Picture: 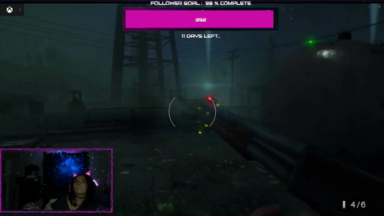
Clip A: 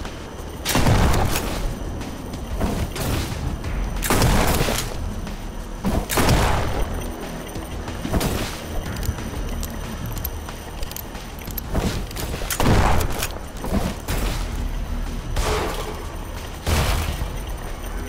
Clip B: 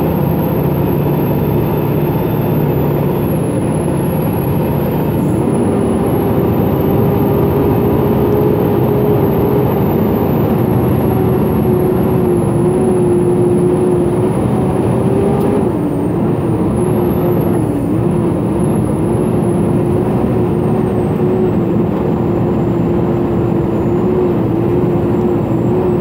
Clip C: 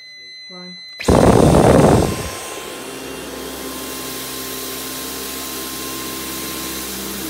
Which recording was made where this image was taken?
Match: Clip A